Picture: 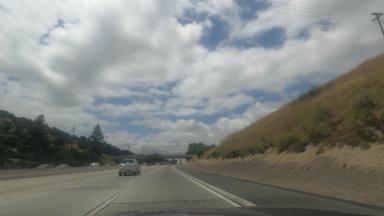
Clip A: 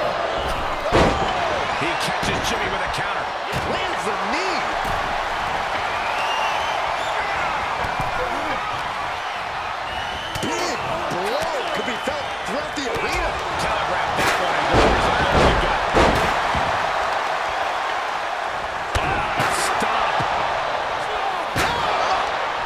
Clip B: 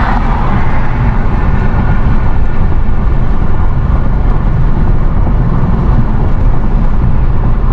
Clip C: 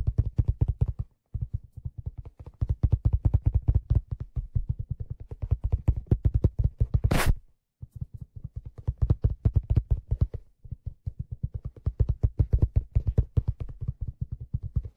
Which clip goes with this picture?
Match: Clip B